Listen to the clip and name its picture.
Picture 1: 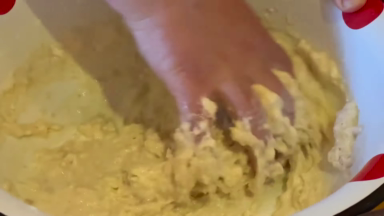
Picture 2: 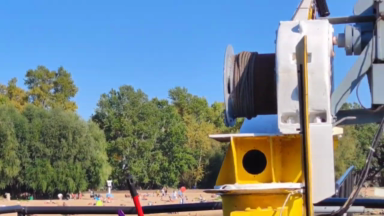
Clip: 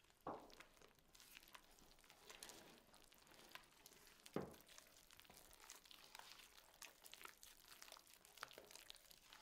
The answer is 1